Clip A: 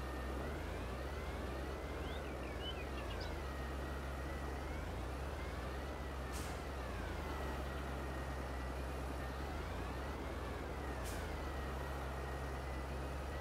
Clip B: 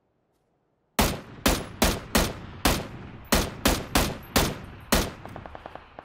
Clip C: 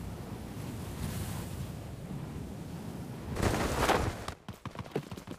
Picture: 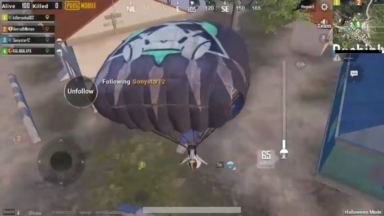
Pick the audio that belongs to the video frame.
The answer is C